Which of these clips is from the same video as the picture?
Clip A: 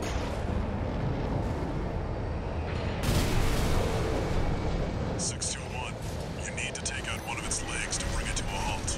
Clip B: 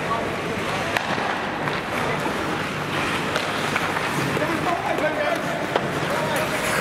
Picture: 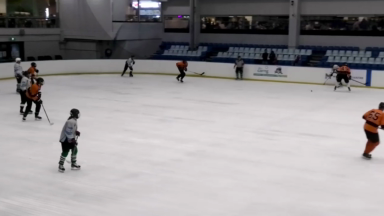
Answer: B